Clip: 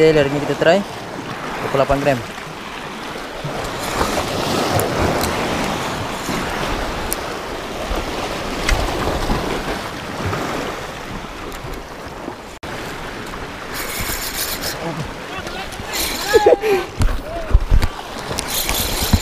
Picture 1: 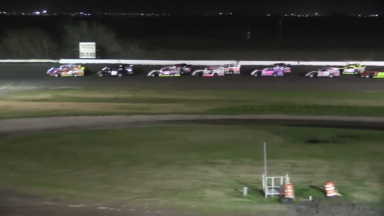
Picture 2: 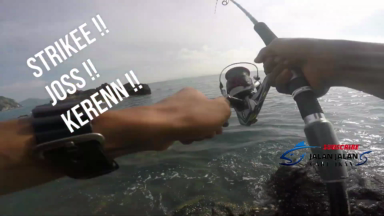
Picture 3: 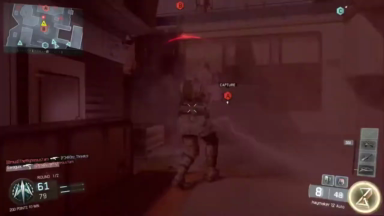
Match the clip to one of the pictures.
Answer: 2